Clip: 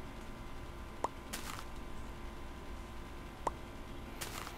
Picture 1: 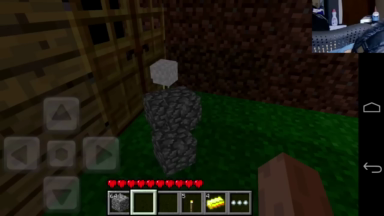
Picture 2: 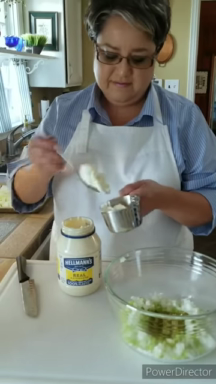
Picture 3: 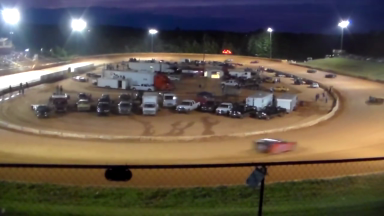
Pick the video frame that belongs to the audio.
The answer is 1